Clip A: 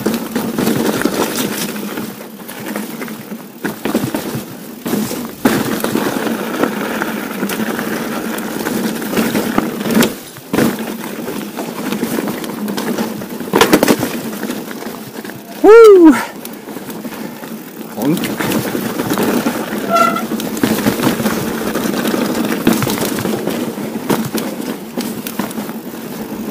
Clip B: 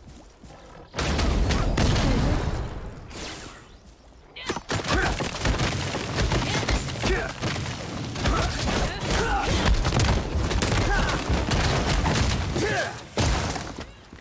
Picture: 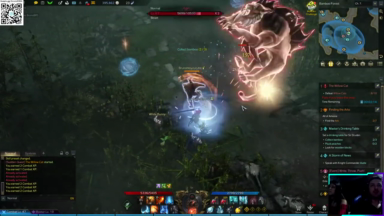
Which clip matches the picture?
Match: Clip B